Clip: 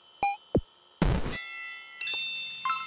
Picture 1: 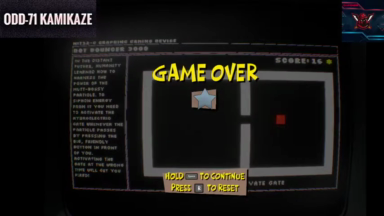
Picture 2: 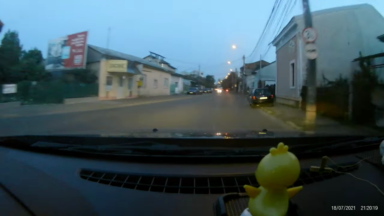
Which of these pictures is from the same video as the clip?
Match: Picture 1